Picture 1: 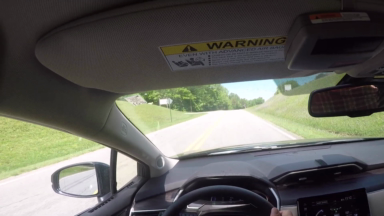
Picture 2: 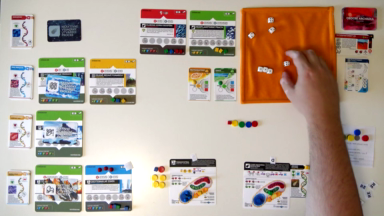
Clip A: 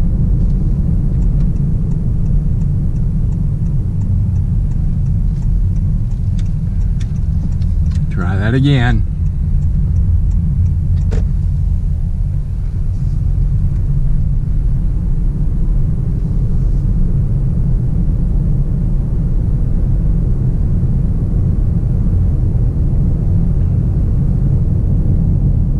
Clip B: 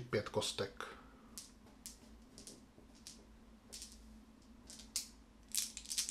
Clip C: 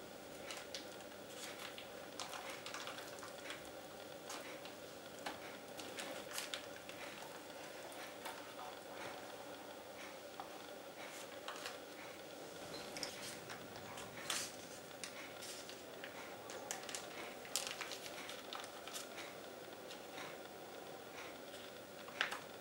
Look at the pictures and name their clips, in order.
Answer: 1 A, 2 B